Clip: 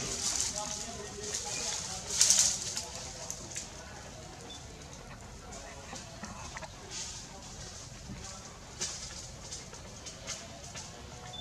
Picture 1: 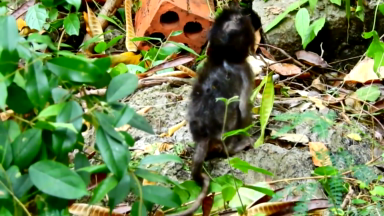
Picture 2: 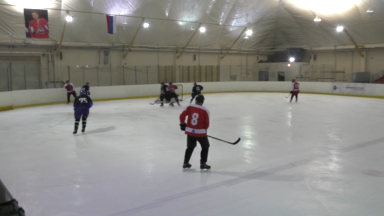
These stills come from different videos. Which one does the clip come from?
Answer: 1